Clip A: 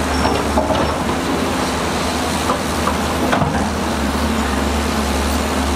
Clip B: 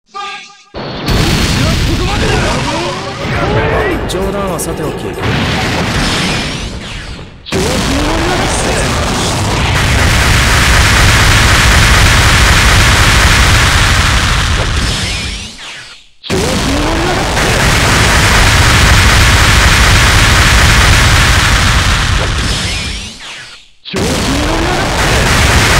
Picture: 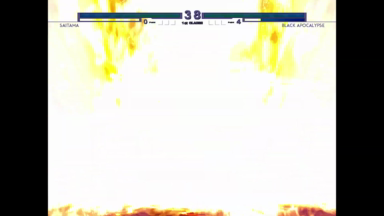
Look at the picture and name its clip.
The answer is B